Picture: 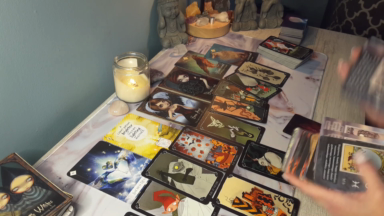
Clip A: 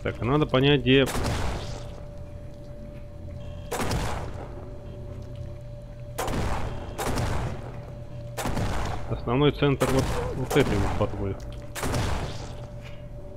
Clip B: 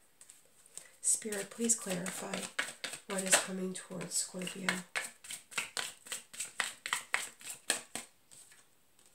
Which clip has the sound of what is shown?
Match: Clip B